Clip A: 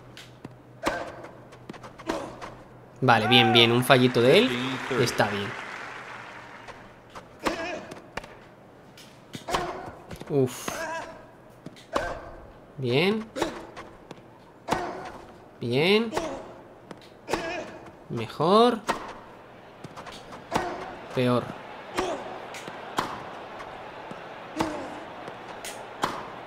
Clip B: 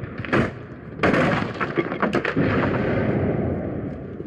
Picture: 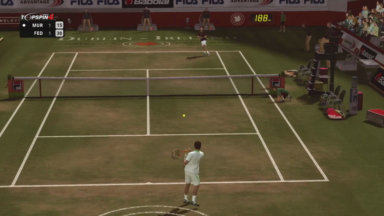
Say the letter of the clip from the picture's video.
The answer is A